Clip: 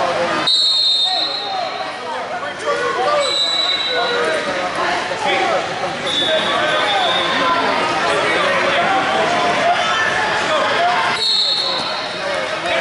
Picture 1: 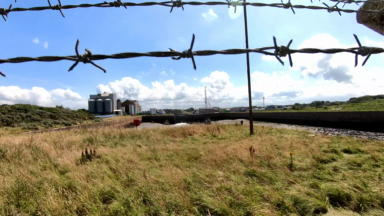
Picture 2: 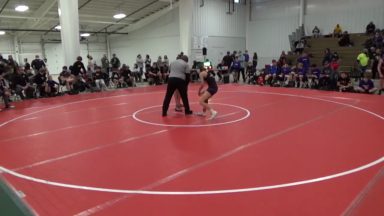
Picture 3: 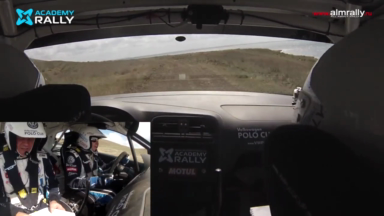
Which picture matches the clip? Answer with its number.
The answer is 2